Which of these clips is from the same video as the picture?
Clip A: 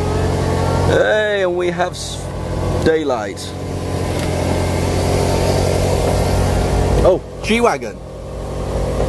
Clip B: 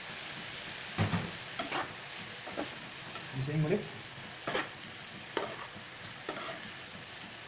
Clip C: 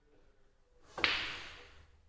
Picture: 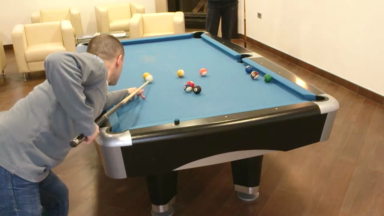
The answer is C